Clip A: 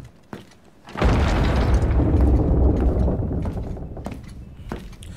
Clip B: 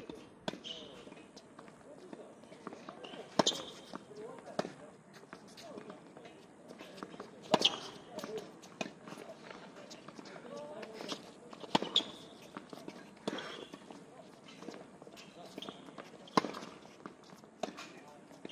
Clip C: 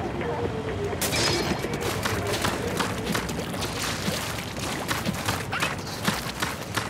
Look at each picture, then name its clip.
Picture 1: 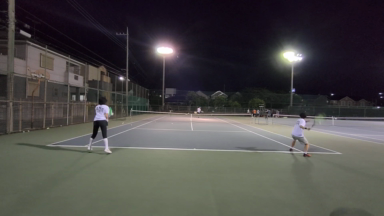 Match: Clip B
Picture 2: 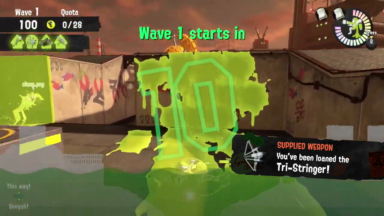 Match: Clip C